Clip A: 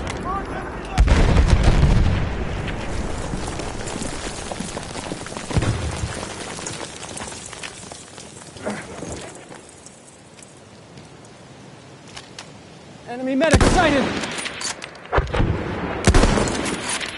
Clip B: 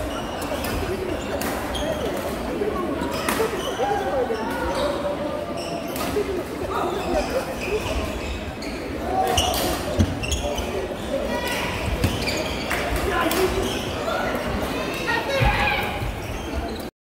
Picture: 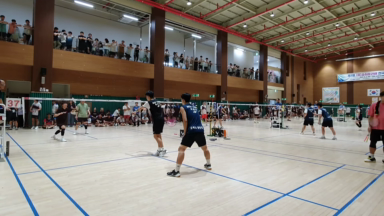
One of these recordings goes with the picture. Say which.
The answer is B